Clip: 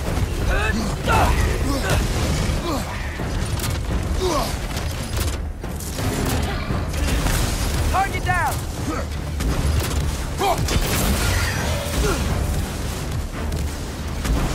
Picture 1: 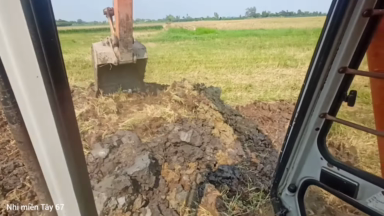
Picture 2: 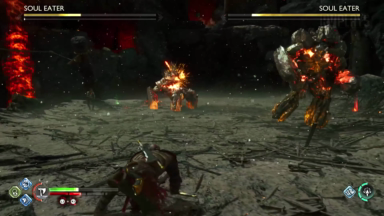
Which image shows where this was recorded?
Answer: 2